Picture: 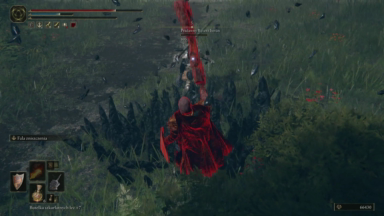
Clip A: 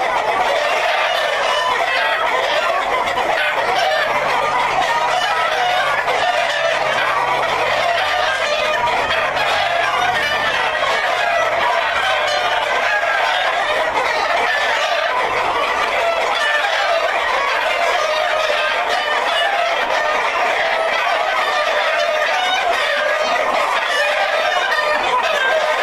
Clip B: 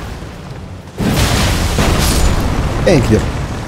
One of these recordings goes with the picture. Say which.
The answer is B